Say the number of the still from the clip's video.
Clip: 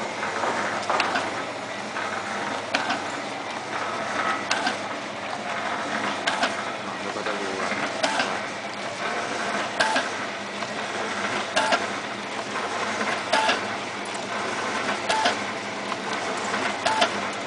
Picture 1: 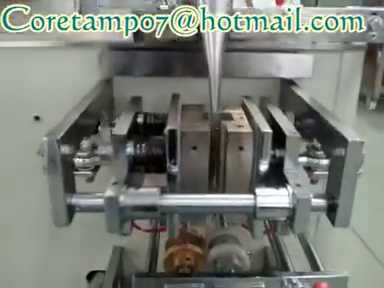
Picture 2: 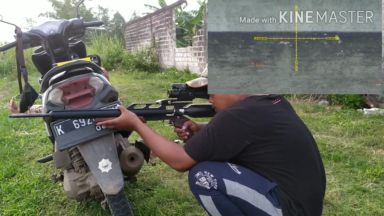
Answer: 1